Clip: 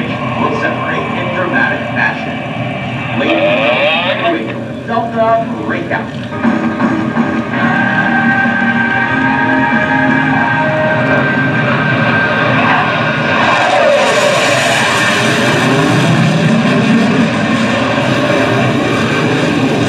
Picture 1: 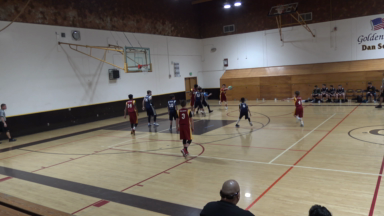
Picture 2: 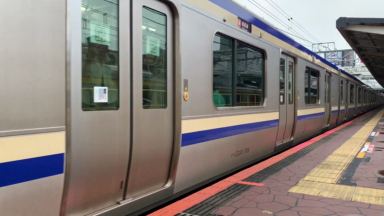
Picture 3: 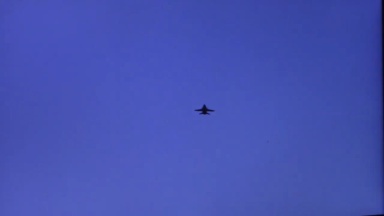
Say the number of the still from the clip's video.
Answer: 3